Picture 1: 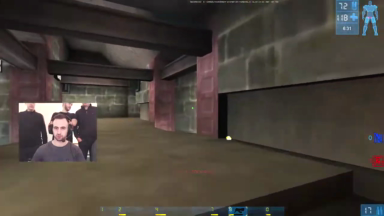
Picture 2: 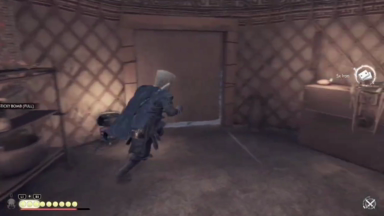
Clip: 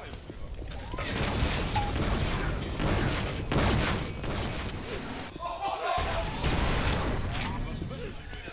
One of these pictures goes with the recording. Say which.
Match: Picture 1